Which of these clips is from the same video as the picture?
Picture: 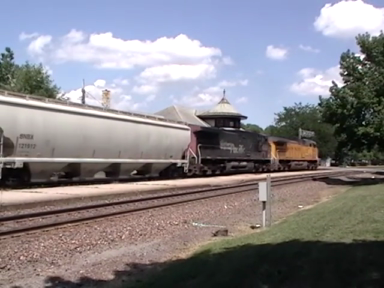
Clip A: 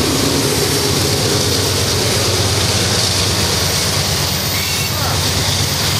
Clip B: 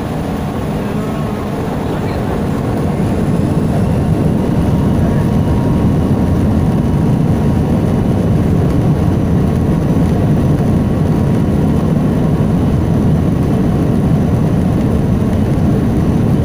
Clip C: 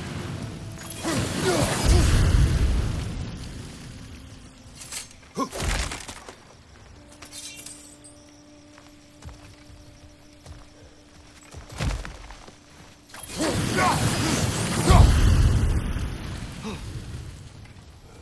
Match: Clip A